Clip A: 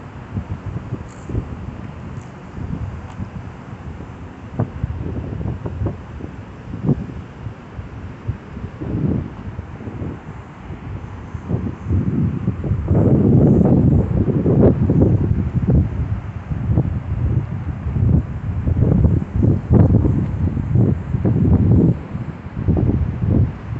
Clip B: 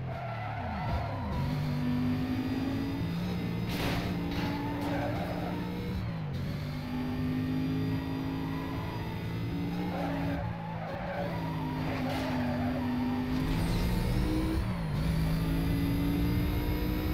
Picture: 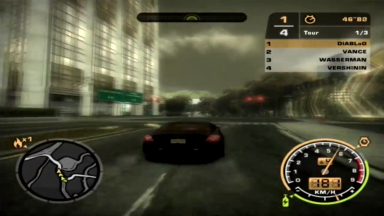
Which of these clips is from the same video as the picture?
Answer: B